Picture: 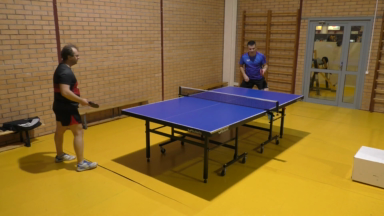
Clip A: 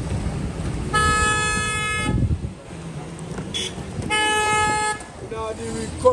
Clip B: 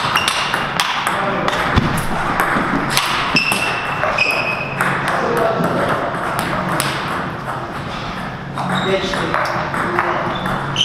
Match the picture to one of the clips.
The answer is B